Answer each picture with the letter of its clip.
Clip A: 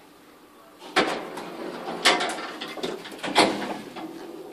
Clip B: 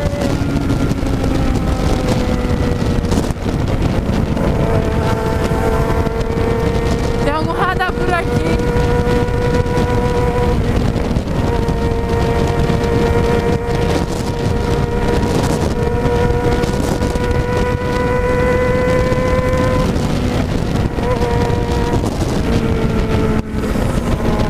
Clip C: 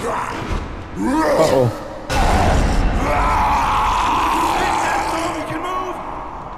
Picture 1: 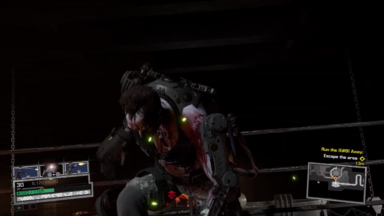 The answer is C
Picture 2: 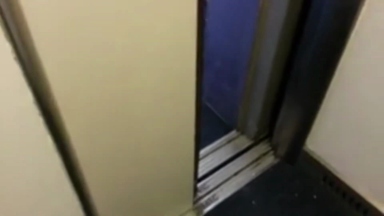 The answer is A